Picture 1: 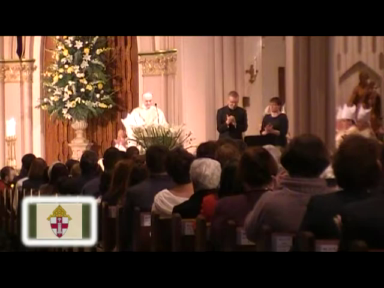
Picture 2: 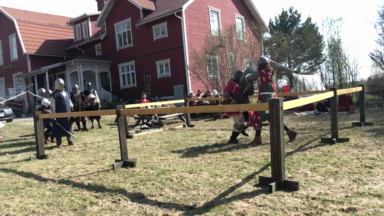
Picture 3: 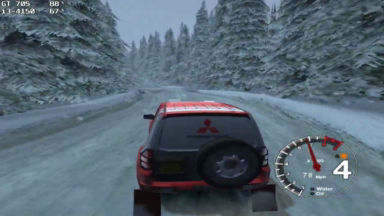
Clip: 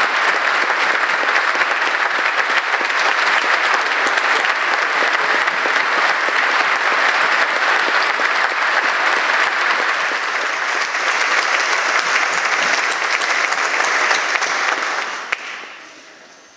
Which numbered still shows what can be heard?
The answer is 1